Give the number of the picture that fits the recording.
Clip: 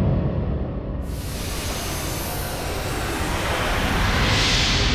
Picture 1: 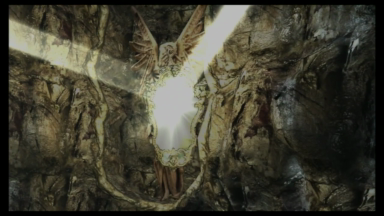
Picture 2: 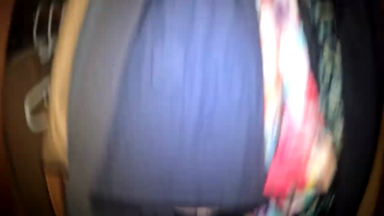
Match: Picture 1